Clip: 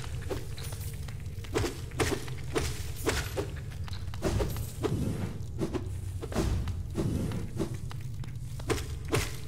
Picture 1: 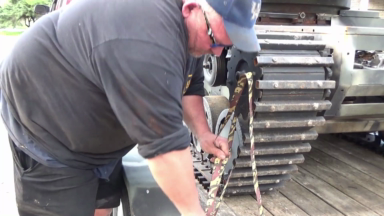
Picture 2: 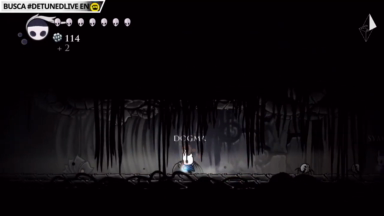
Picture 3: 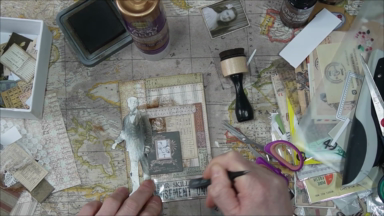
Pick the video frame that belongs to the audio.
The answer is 2